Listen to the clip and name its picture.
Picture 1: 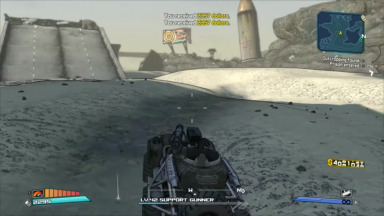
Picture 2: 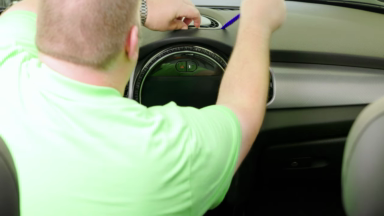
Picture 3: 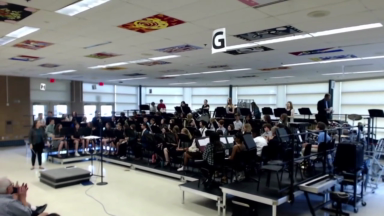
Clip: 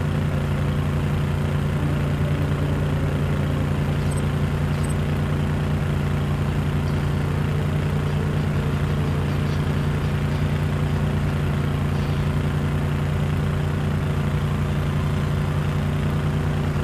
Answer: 1